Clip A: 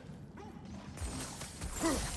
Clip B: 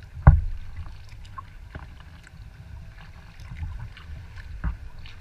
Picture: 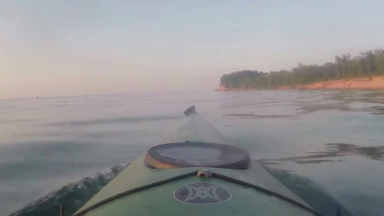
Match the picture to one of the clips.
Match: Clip B